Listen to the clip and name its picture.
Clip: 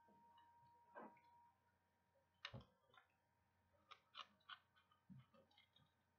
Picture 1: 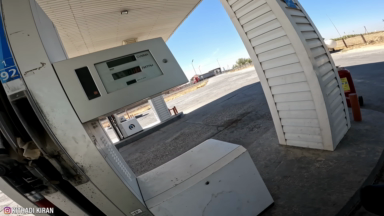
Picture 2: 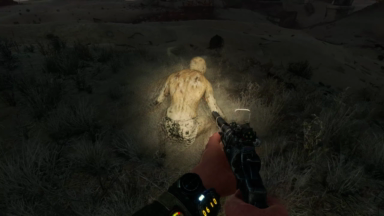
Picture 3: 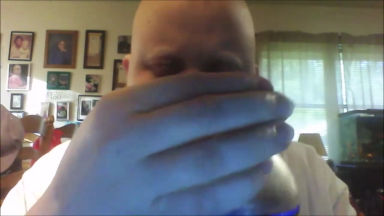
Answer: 3